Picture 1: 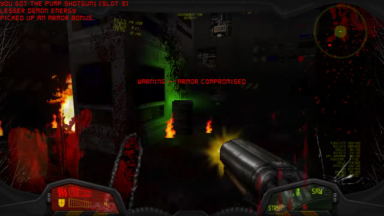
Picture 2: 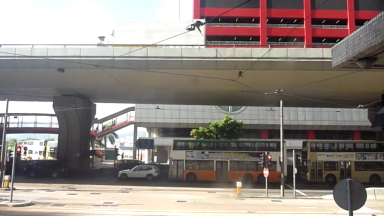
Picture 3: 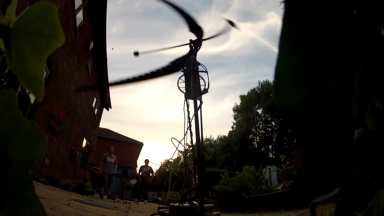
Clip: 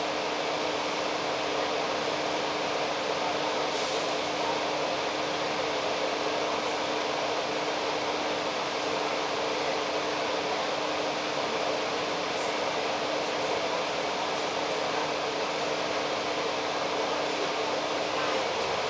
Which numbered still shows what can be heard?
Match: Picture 2